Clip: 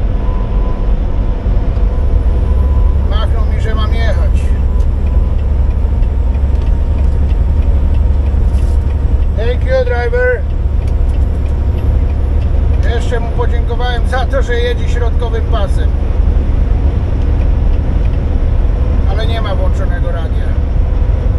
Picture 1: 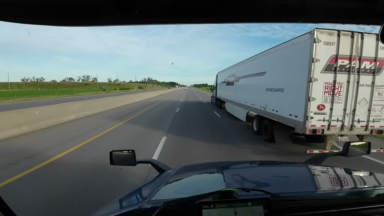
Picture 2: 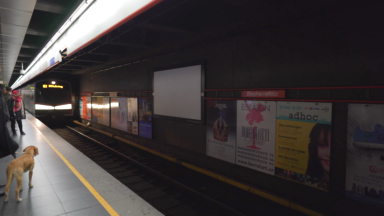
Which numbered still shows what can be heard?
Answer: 1